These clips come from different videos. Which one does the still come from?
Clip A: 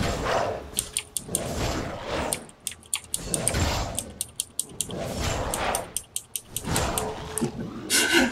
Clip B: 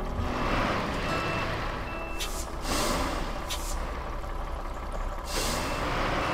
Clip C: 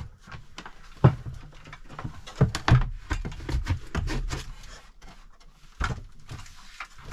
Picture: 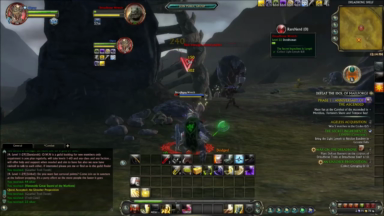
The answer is A